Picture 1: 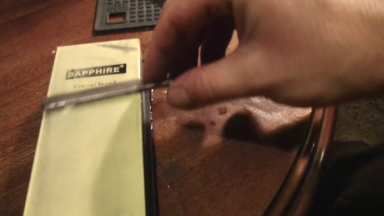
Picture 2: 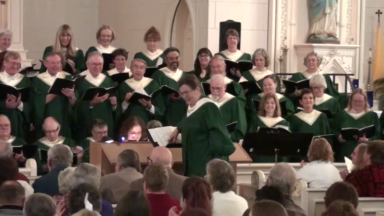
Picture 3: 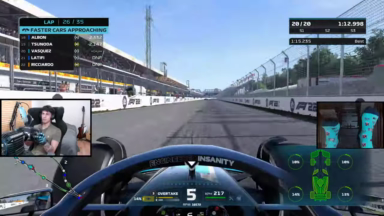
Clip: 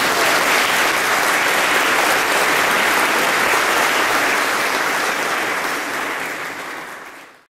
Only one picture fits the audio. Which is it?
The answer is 2